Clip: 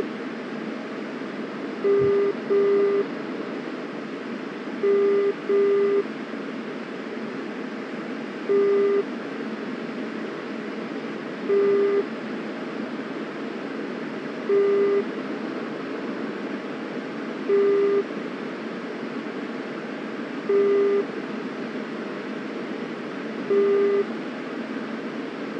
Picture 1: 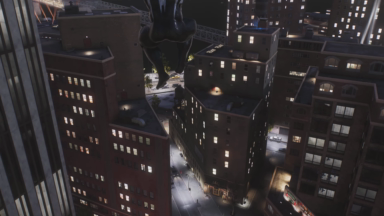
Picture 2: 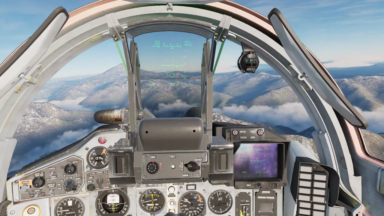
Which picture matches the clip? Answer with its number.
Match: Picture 2